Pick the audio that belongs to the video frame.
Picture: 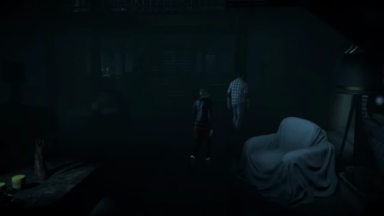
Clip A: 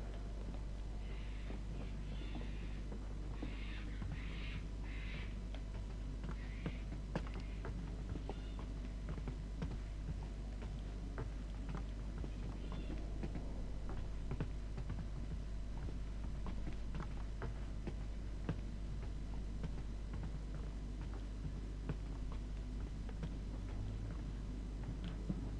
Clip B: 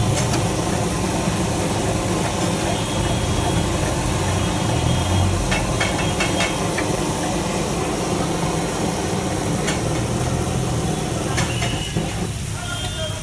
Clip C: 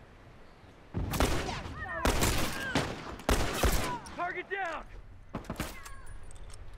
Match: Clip A